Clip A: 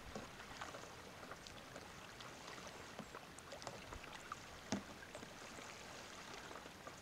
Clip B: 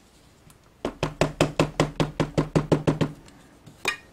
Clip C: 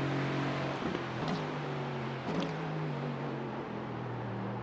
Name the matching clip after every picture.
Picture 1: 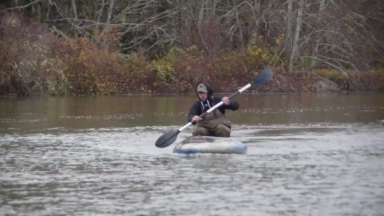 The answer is A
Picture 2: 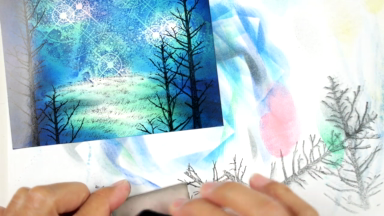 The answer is B